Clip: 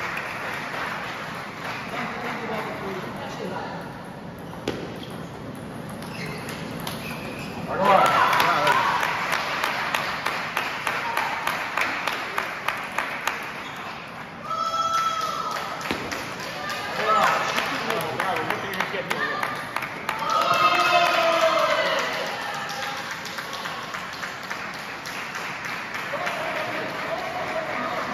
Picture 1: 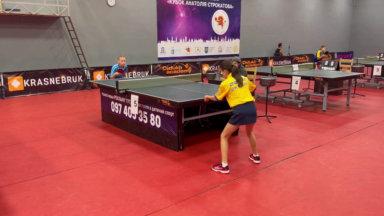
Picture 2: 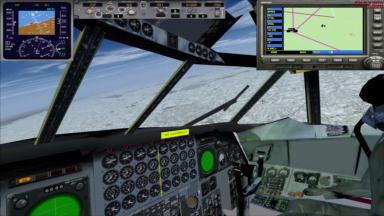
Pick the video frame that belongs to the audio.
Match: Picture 1